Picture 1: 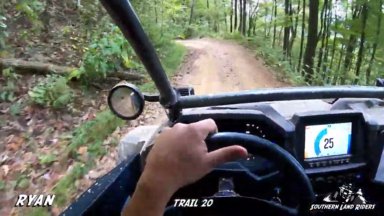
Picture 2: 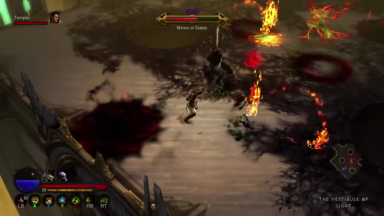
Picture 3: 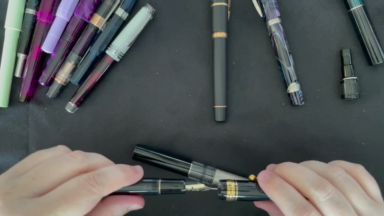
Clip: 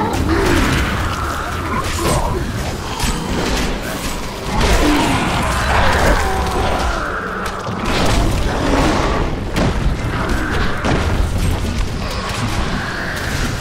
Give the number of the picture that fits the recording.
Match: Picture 2